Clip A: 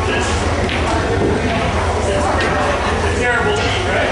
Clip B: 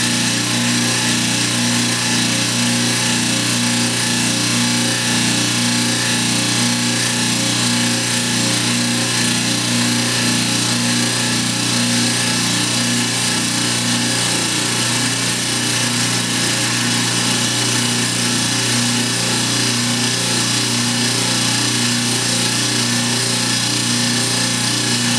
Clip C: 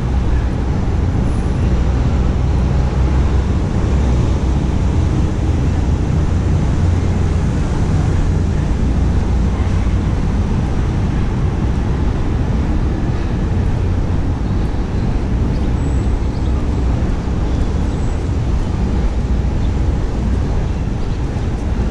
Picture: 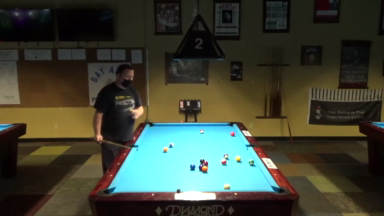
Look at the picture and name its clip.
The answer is A